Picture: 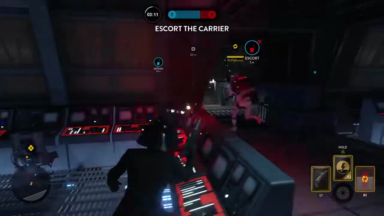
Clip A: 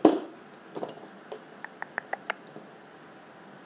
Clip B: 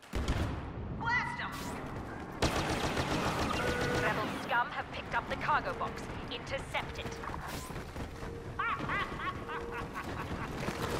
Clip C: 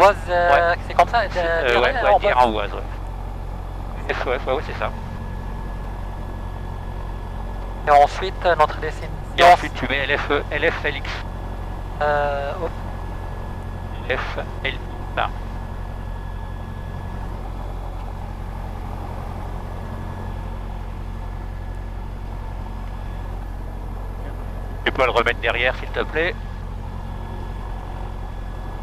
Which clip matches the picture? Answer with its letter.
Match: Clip B